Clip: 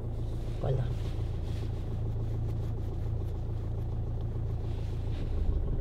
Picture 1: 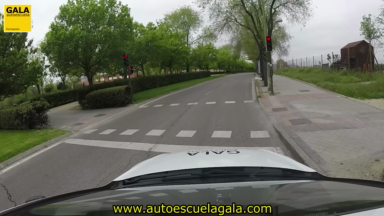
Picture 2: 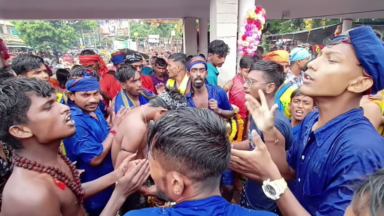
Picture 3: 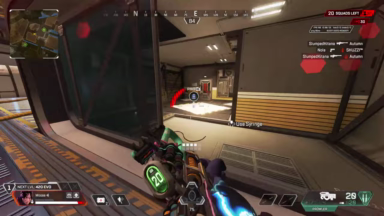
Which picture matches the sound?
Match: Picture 1